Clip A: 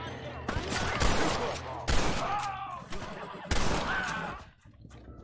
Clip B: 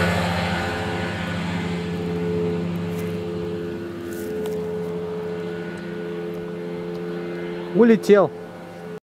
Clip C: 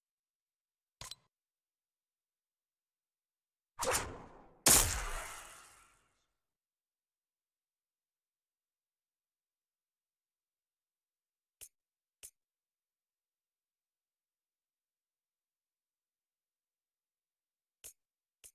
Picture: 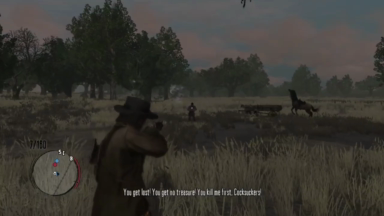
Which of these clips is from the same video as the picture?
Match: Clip A